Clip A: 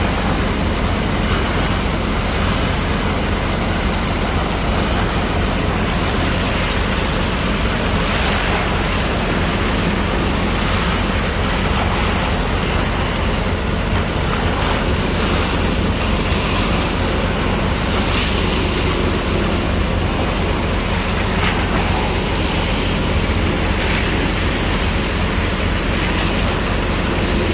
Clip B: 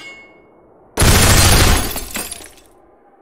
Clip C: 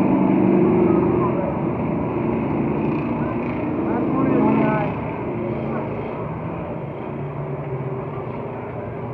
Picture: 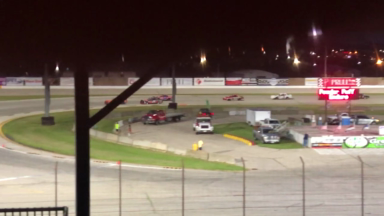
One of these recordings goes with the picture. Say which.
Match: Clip C